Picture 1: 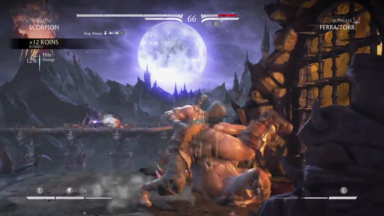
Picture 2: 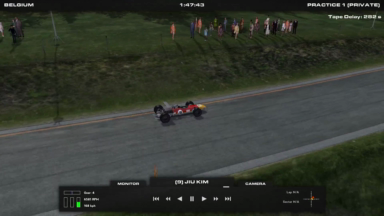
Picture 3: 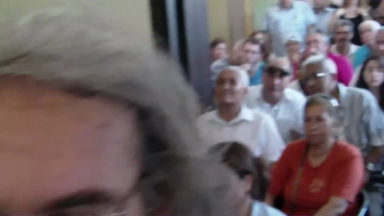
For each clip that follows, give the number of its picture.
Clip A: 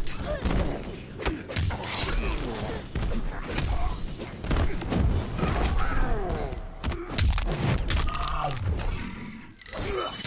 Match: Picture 1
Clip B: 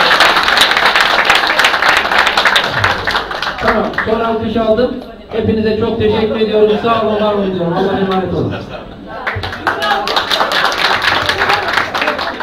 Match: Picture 3